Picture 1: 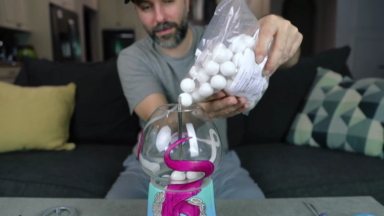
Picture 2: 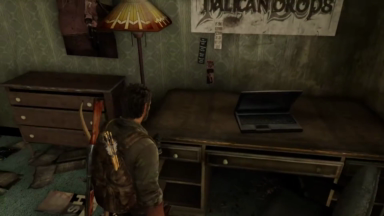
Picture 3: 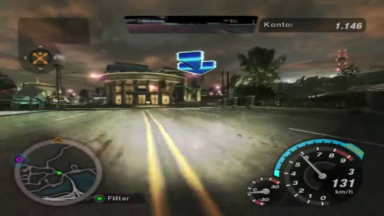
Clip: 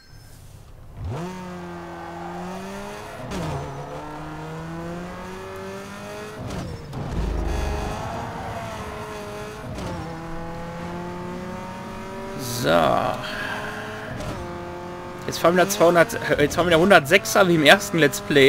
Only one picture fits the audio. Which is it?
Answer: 3